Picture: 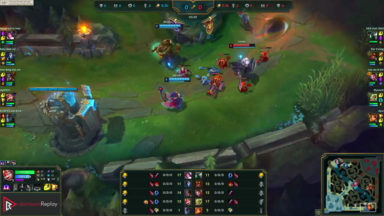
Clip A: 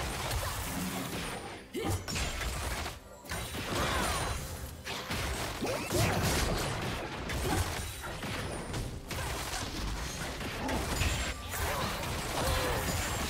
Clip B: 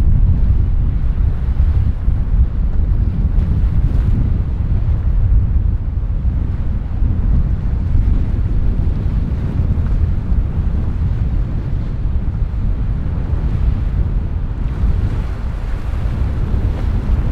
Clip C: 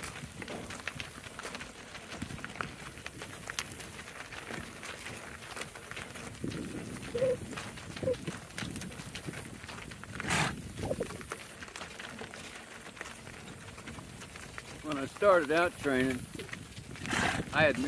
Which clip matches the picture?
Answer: A